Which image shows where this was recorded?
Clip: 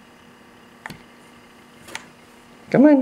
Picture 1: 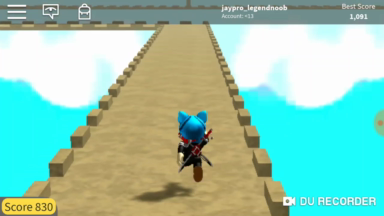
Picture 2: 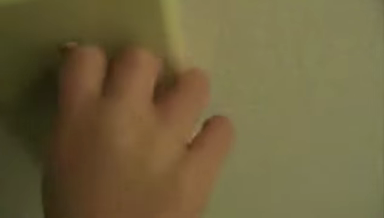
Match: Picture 2